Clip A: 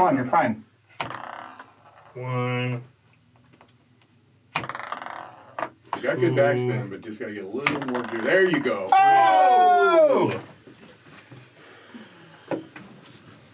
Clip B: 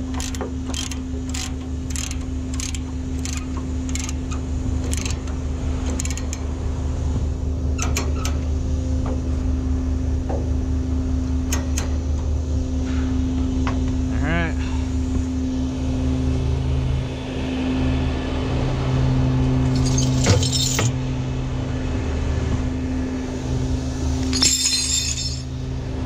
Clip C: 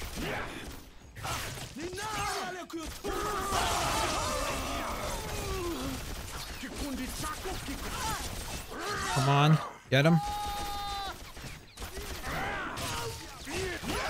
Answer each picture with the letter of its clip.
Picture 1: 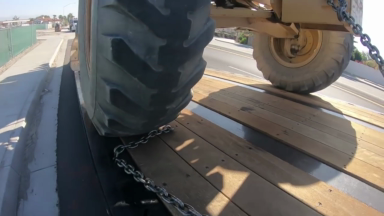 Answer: B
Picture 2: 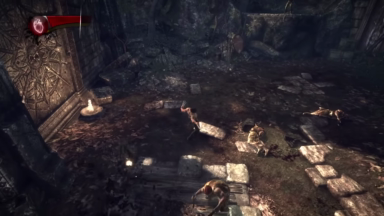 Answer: C